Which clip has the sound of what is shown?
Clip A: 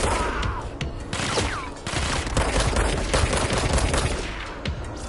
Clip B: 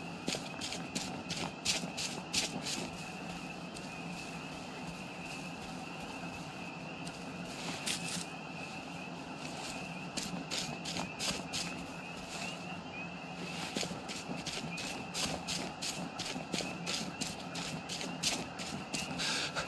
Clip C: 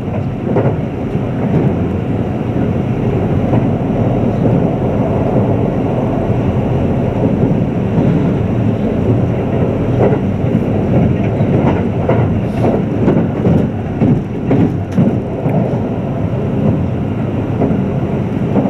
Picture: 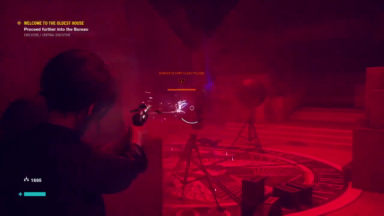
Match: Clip A